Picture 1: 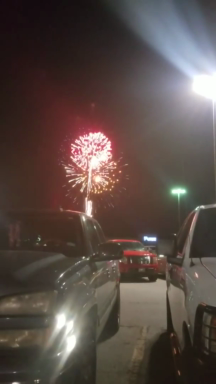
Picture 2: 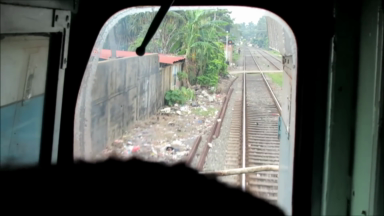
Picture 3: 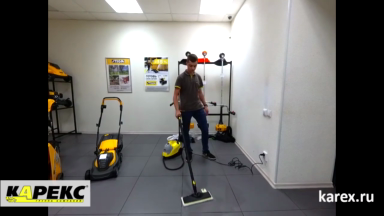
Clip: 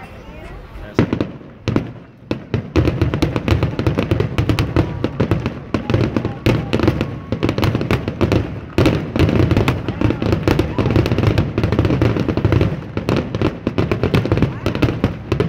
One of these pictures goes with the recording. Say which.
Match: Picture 1